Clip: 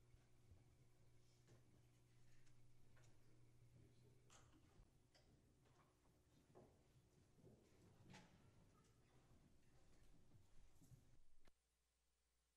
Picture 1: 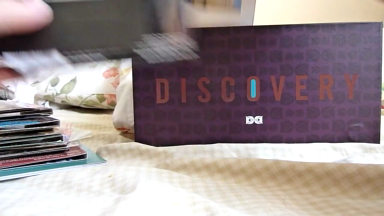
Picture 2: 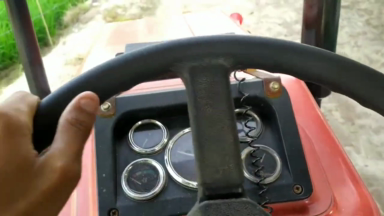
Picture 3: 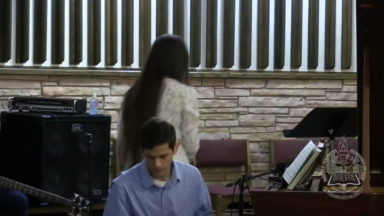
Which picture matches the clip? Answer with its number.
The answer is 3